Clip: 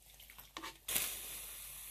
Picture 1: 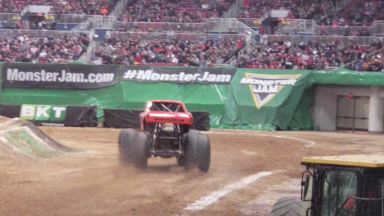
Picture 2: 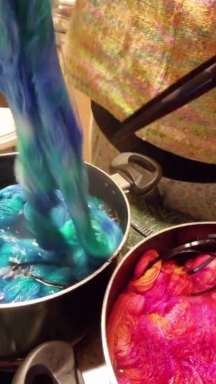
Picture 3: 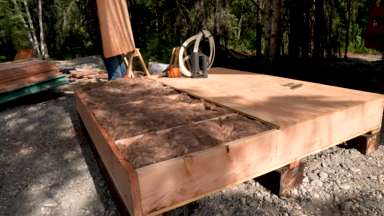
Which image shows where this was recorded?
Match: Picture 2